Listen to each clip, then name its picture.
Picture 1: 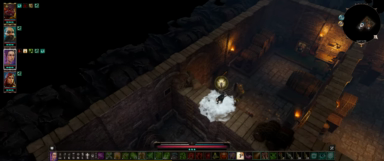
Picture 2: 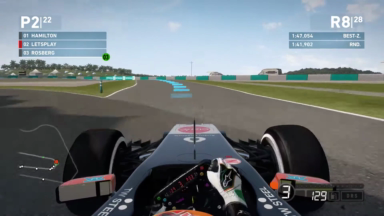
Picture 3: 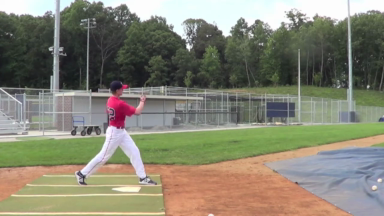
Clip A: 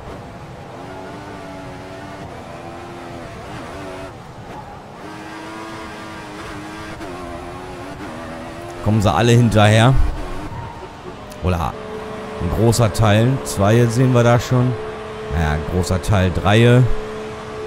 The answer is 2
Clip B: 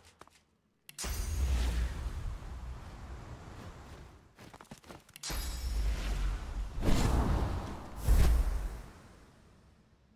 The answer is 1